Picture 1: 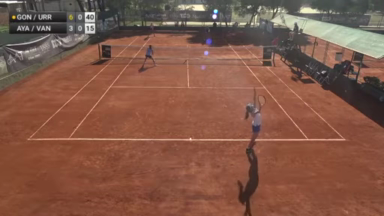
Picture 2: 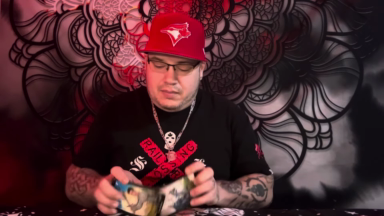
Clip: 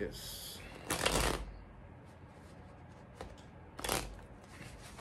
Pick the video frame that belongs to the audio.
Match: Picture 2